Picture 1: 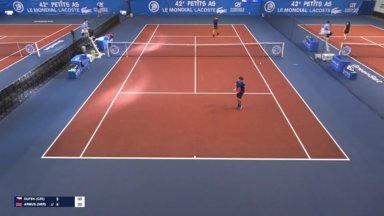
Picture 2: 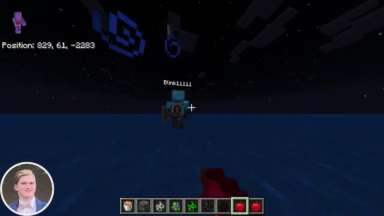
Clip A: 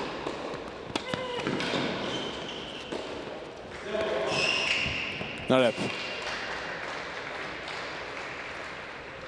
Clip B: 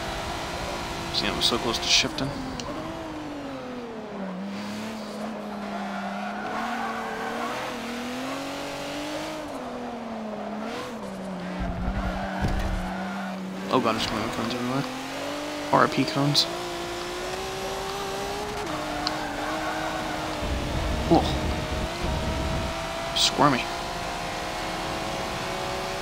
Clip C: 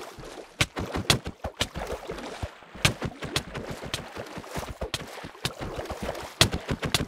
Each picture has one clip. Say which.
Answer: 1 A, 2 C